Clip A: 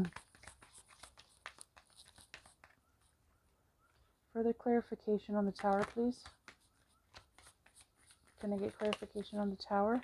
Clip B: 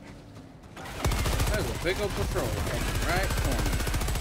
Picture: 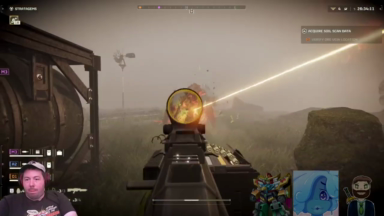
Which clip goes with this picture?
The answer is B